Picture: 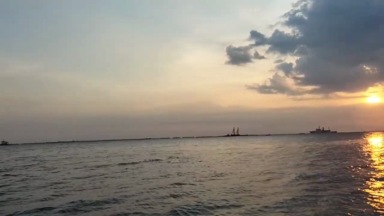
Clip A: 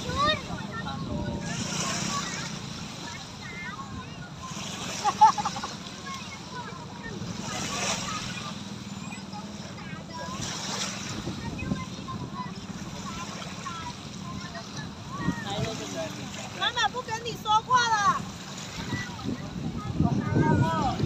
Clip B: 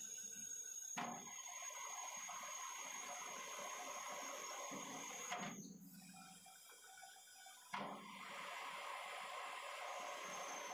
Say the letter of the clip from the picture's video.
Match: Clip A